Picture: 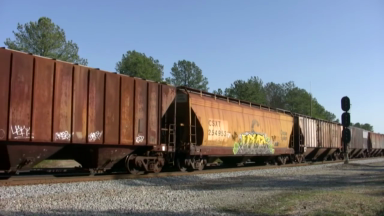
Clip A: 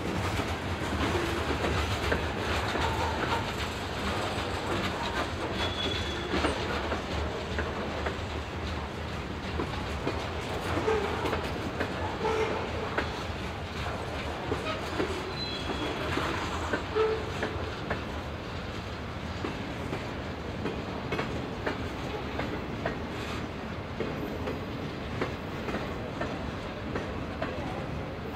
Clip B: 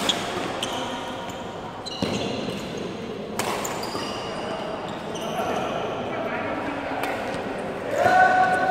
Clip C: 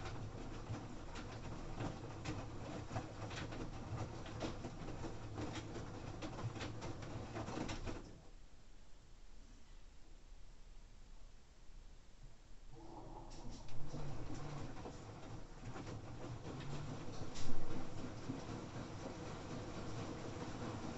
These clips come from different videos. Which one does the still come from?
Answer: A